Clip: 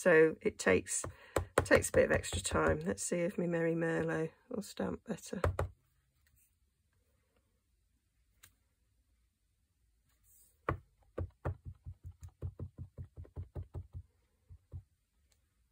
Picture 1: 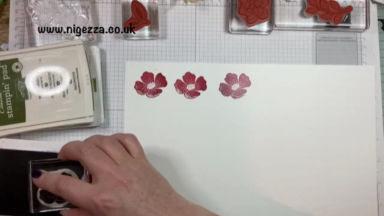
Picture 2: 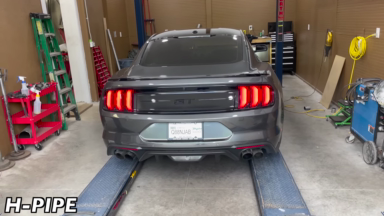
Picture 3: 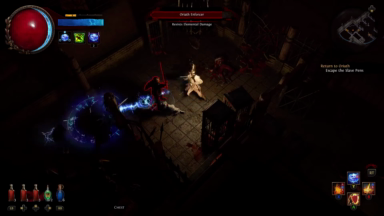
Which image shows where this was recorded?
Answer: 1